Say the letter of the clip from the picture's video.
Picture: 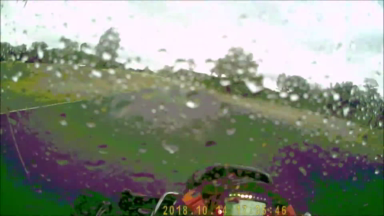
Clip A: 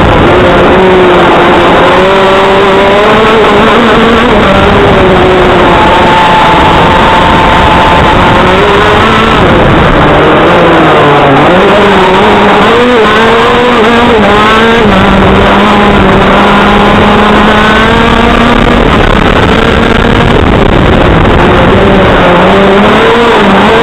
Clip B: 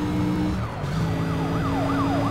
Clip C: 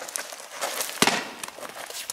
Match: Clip A